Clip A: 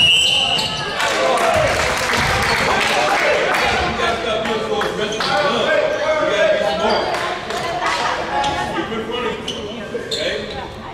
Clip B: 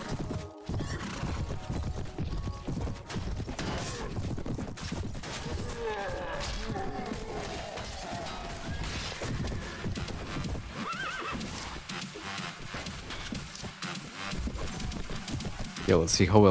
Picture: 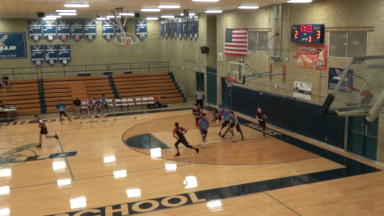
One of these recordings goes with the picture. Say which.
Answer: A